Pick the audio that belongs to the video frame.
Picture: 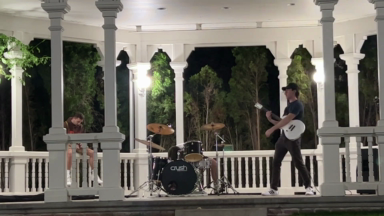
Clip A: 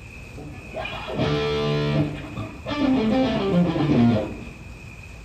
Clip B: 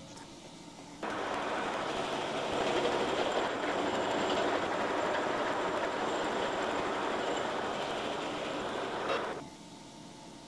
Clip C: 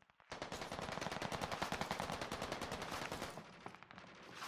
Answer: A